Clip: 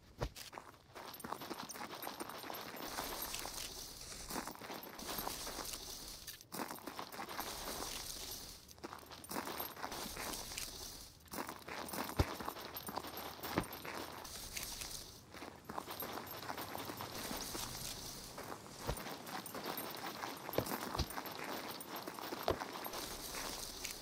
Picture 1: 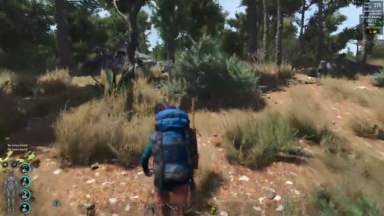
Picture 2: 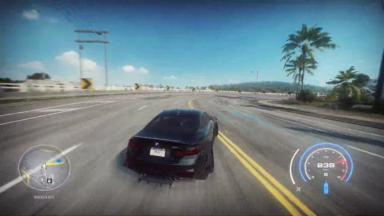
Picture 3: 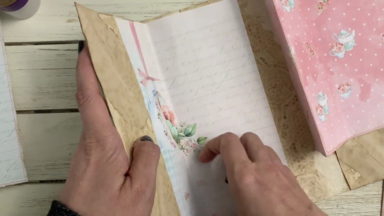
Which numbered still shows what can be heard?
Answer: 1